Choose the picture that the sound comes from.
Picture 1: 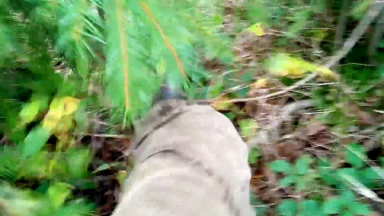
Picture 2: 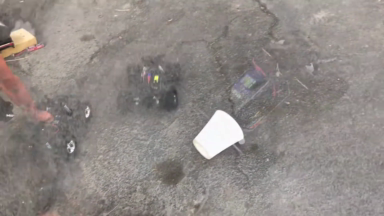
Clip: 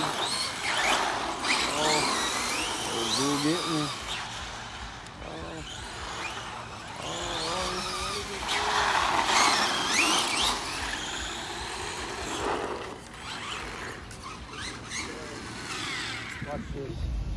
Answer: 2